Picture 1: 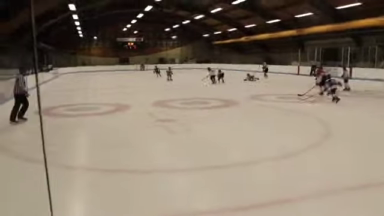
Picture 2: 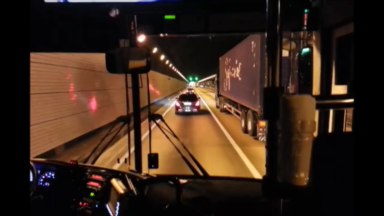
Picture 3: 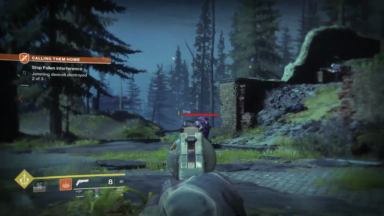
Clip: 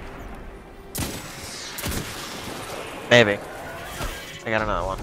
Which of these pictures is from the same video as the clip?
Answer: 3